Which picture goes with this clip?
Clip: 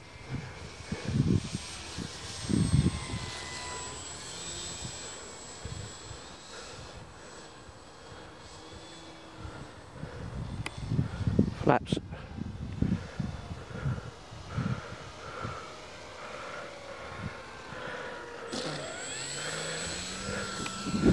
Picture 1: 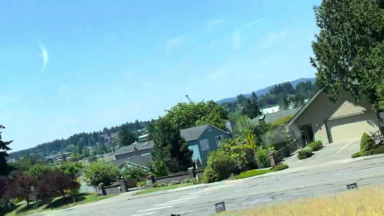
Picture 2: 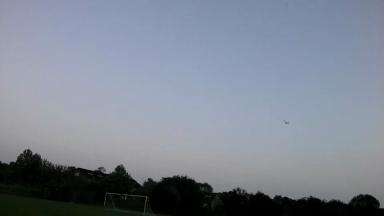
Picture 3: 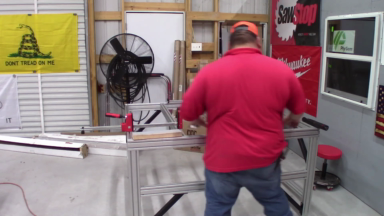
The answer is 2